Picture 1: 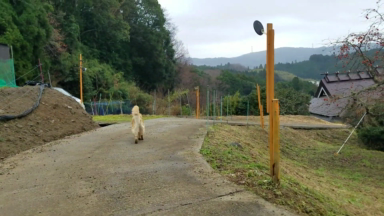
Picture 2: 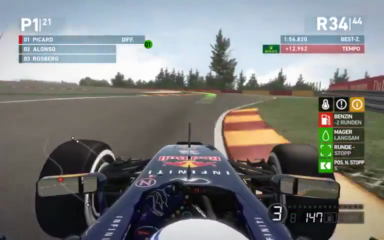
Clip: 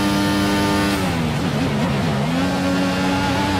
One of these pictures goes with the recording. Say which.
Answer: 2